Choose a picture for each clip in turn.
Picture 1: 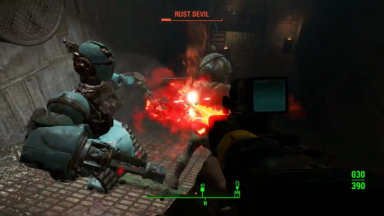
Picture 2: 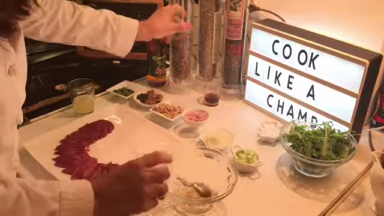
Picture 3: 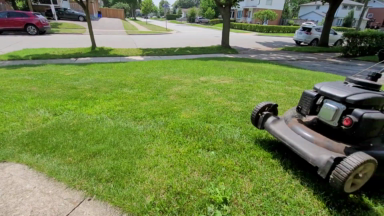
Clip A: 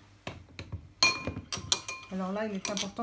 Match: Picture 2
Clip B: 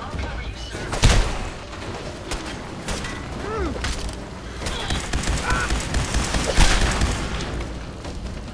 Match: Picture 1